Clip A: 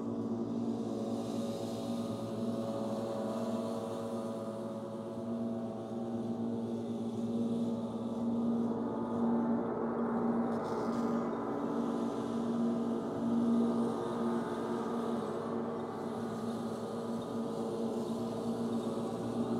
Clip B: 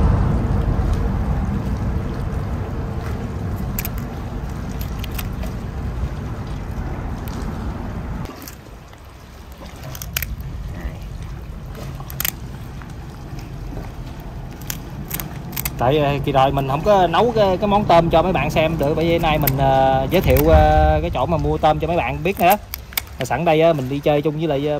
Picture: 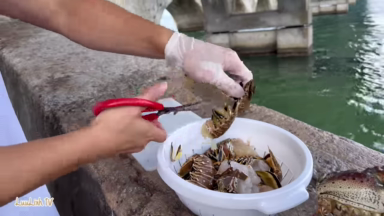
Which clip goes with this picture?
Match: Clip B